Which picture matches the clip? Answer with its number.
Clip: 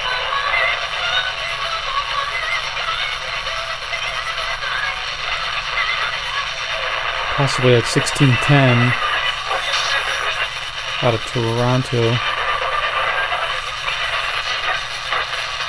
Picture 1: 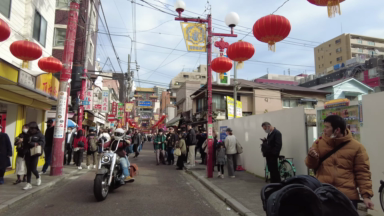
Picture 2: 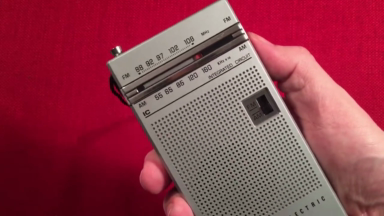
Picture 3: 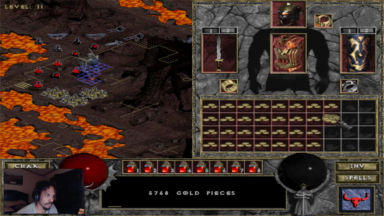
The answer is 2